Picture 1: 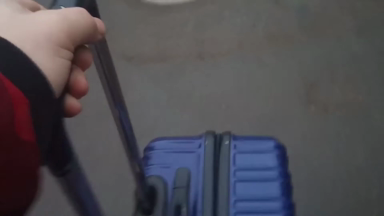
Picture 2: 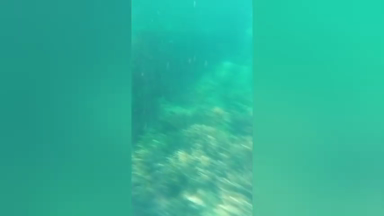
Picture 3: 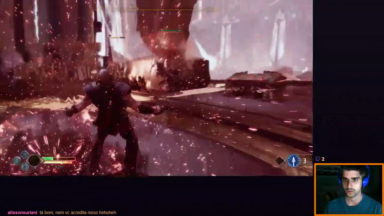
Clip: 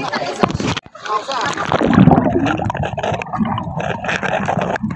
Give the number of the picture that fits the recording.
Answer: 2